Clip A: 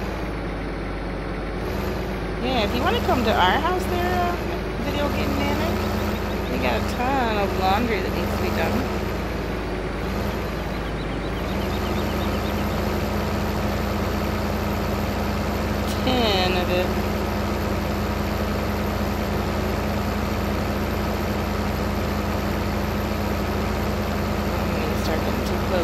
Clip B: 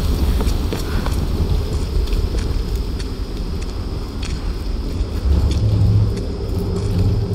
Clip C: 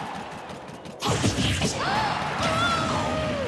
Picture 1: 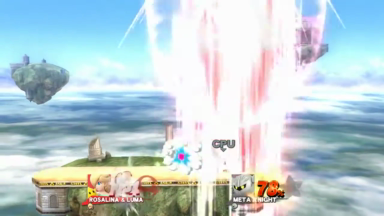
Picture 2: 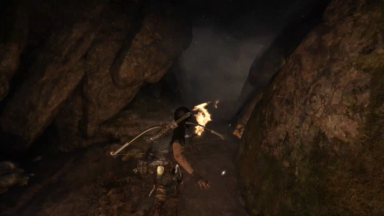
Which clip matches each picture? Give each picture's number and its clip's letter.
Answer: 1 C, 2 B